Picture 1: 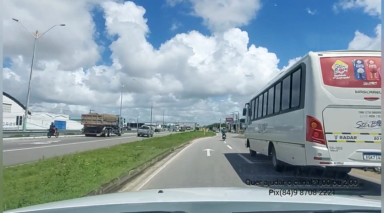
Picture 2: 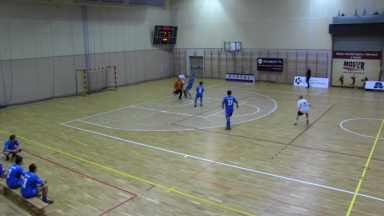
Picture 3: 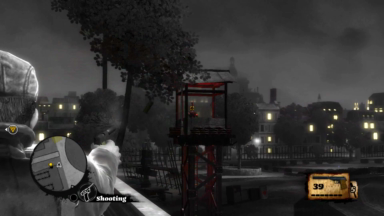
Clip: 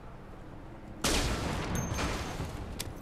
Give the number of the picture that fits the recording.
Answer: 3